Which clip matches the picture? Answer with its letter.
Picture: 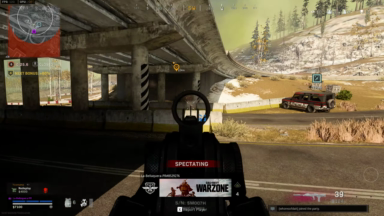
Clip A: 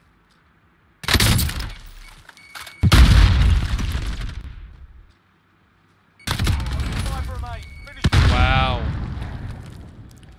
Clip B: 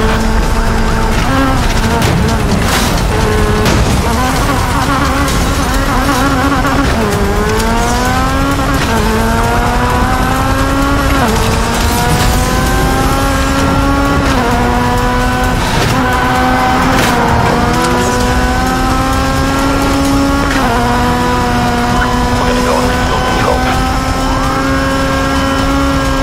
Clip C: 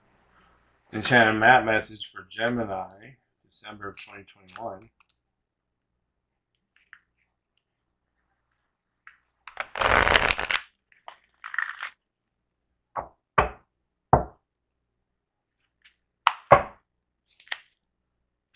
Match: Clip A